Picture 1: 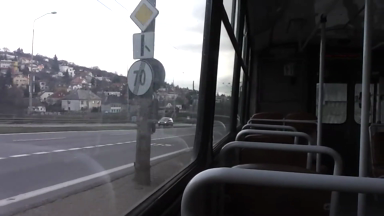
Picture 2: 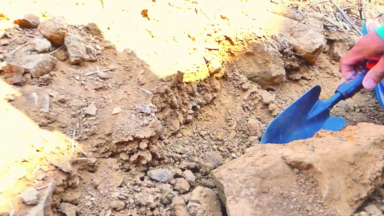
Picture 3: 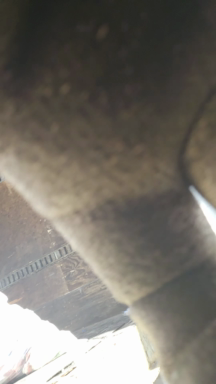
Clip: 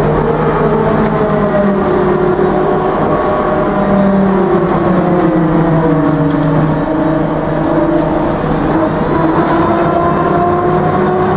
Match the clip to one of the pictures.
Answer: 1